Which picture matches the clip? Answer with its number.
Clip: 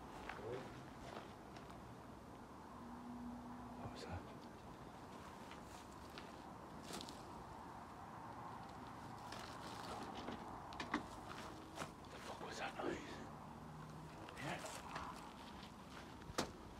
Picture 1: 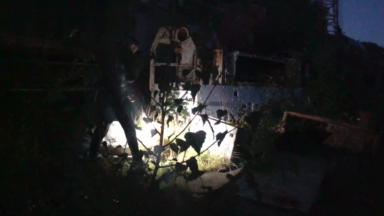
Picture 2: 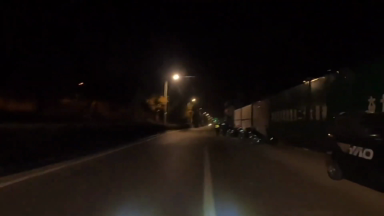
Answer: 1